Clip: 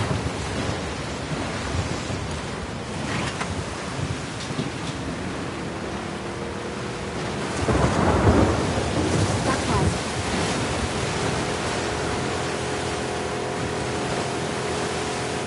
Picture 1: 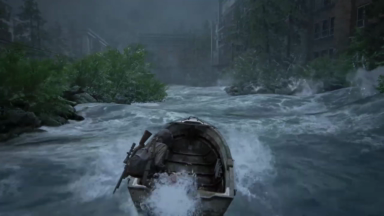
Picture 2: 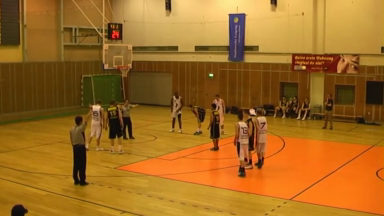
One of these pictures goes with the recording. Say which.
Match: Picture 1